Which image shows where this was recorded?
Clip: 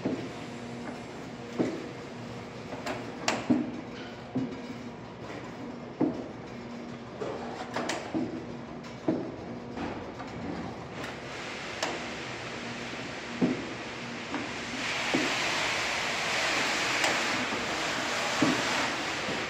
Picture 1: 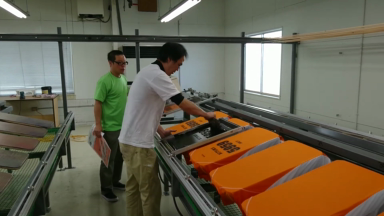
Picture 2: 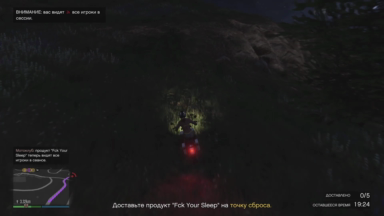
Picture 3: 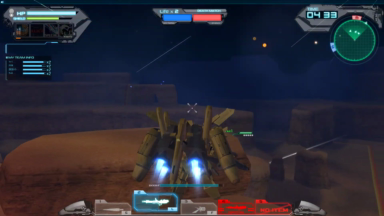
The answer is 1